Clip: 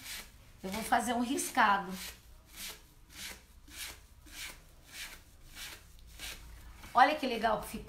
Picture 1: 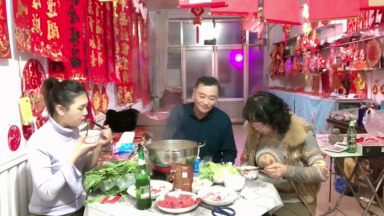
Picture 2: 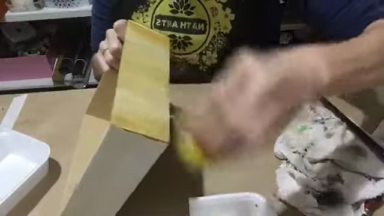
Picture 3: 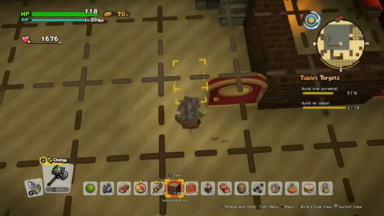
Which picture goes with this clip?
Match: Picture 2